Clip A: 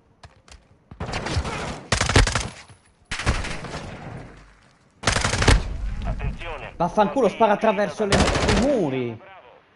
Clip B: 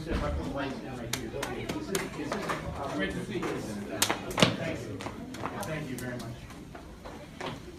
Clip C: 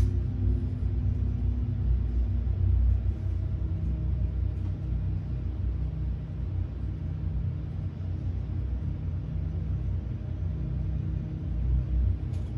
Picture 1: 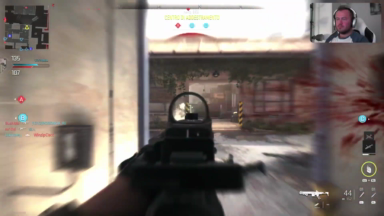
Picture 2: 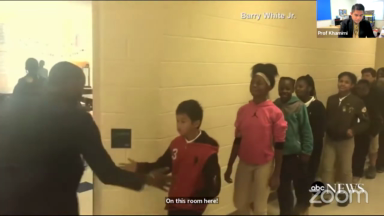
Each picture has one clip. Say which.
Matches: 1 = A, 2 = B